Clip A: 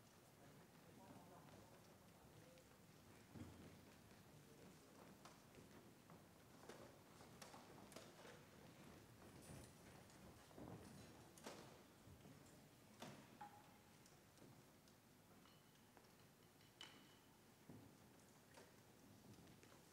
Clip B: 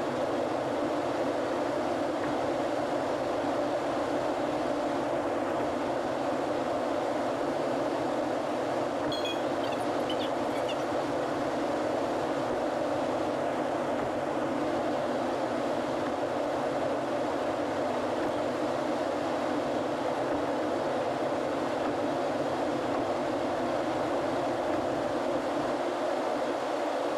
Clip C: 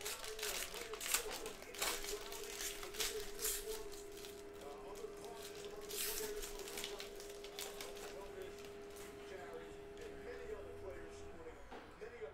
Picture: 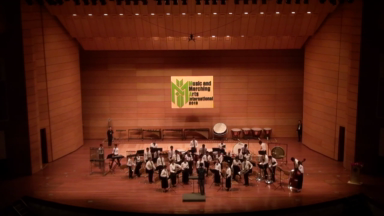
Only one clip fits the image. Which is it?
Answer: A